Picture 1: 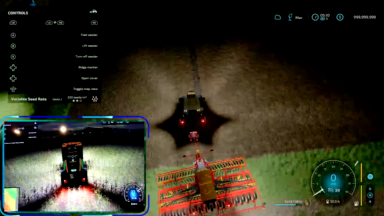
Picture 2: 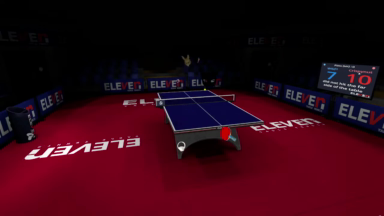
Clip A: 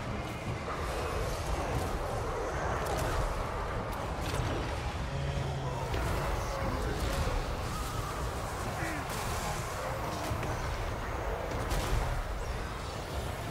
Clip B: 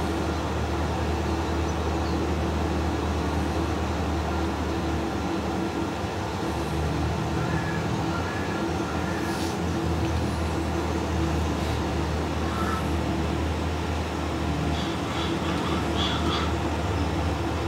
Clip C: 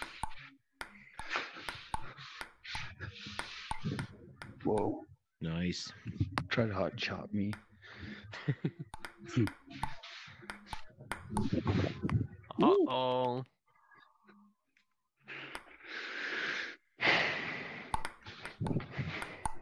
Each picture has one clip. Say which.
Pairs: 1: B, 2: C